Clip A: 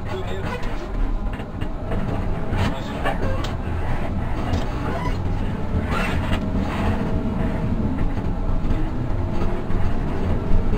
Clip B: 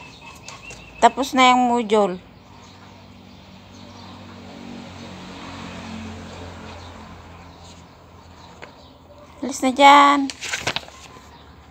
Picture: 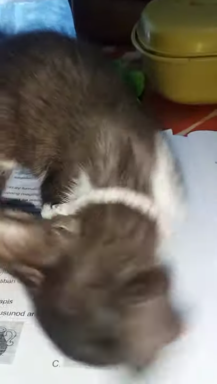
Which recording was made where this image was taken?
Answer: B